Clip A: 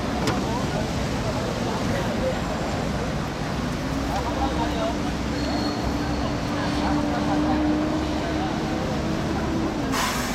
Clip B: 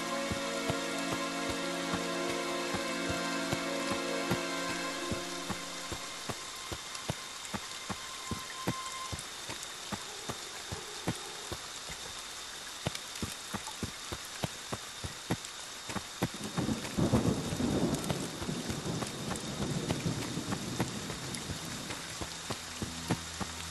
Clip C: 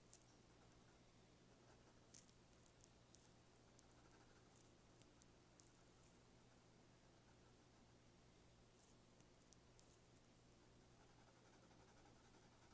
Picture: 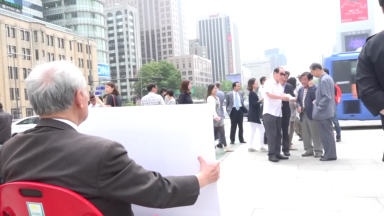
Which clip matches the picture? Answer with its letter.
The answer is A